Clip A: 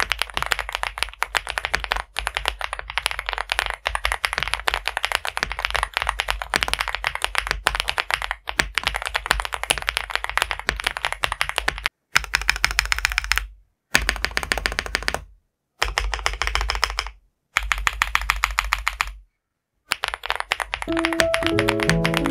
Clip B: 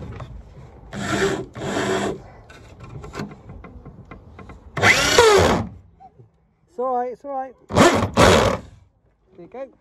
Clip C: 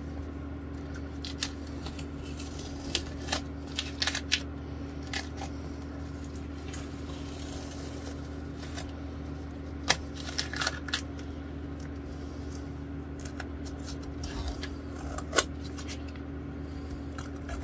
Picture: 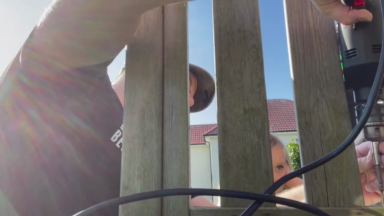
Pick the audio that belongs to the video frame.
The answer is B